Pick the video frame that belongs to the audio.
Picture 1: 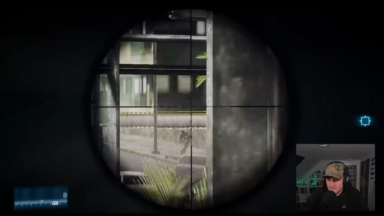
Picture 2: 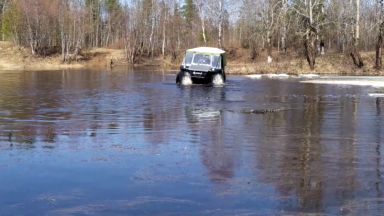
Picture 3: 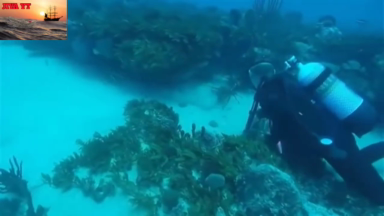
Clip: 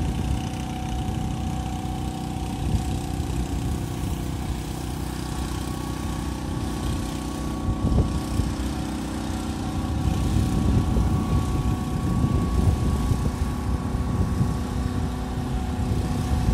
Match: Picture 2